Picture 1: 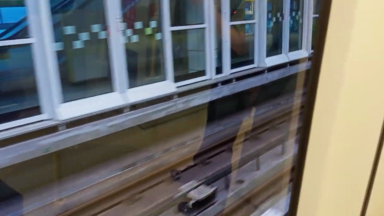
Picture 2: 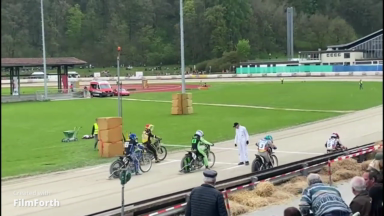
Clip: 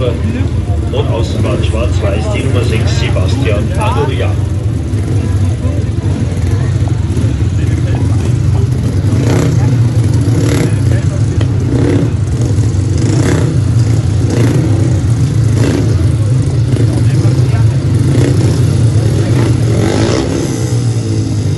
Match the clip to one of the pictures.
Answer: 2